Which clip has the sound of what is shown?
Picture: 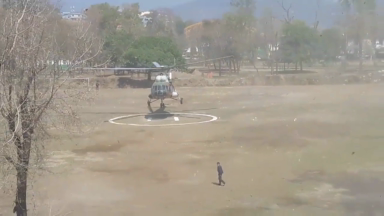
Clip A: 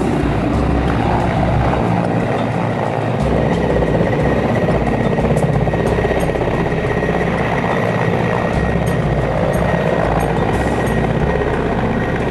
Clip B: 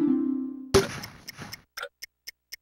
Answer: A